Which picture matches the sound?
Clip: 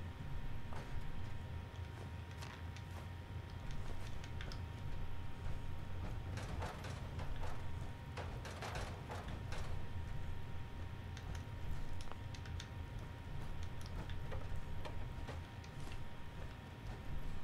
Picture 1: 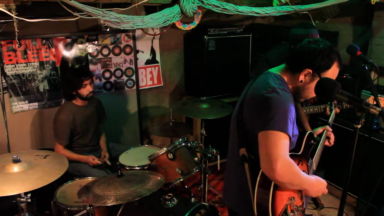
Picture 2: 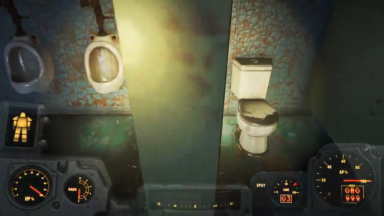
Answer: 2